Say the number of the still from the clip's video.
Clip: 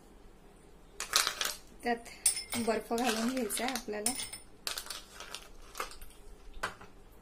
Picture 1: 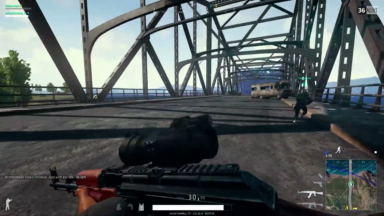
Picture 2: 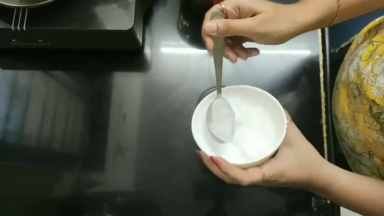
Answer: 2